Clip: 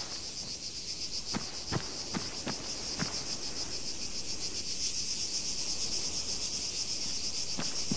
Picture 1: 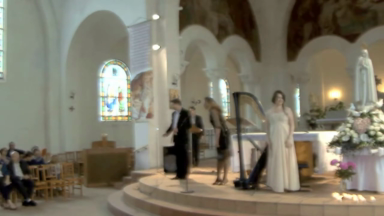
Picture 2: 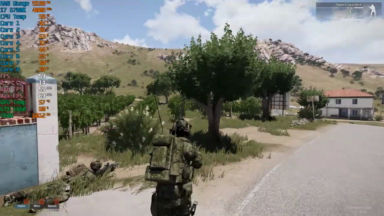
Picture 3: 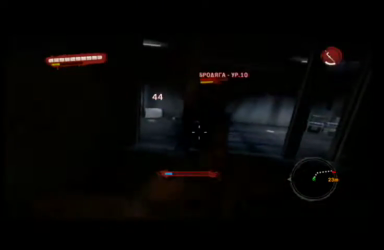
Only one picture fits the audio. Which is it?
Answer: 2